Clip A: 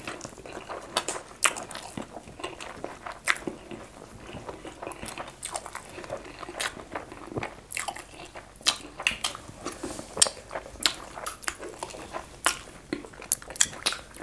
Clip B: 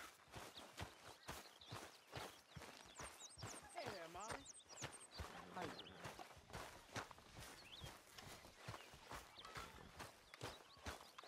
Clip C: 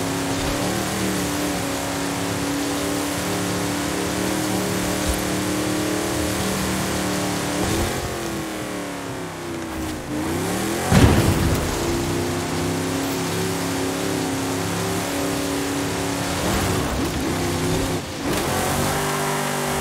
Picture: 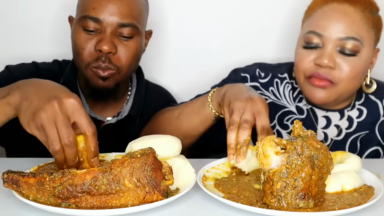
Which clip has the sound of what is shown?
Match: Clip A